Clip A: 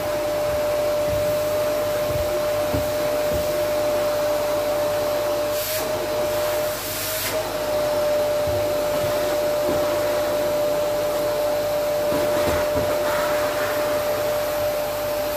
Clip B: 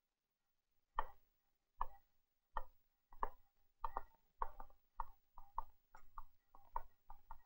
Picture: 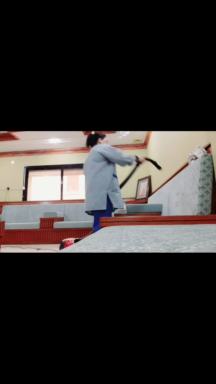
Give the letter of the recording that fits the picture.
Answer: A